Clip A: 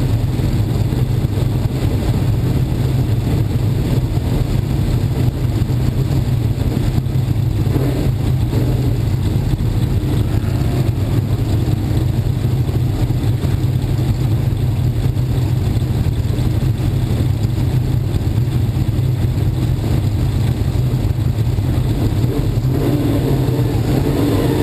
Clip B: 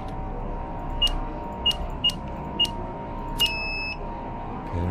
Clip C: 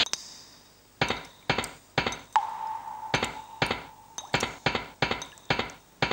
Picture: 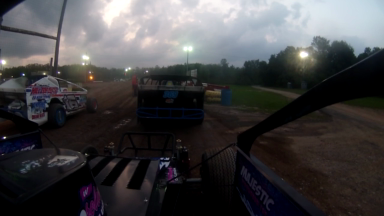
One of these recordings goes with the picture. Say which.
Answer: A